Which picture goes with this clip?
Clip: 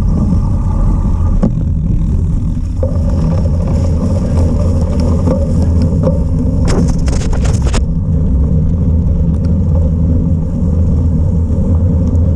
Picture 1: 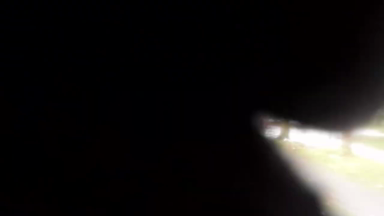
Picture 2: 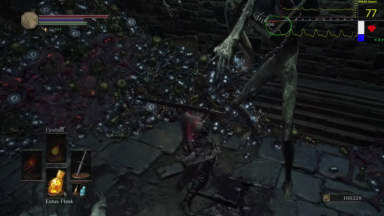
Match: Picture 1